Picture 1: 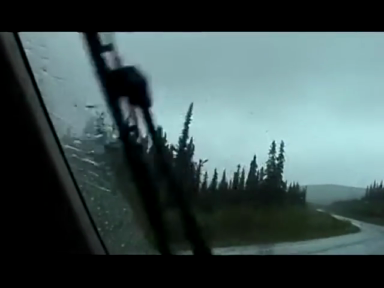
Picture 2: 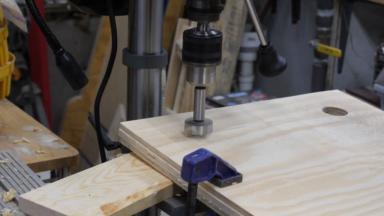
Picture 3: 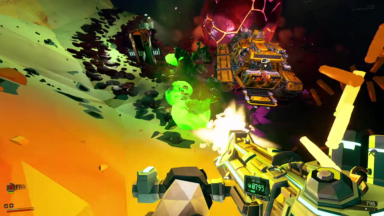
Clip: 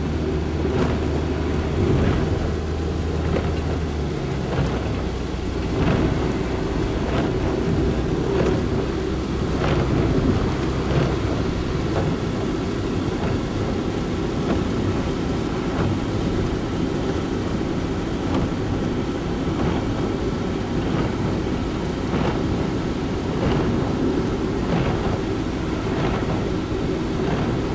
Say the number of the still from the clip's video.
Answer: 1